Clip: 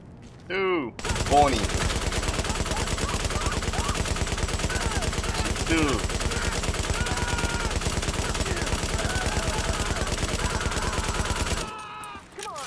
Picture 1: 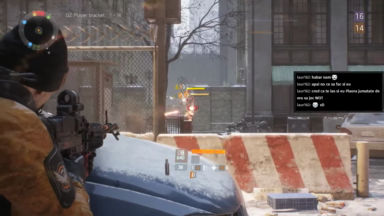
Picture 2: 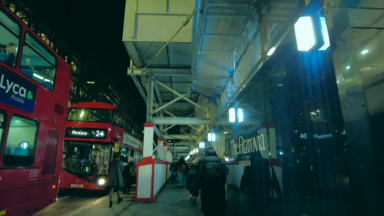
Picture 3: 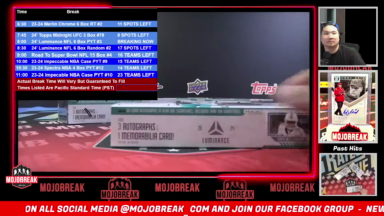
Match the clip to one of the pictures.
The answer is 1